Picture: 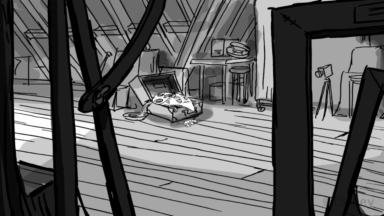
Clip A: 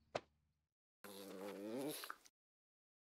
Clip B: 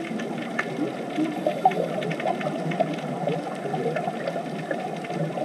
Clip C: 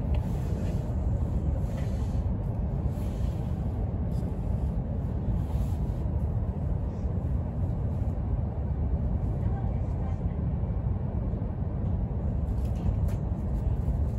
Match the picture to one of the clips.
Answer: A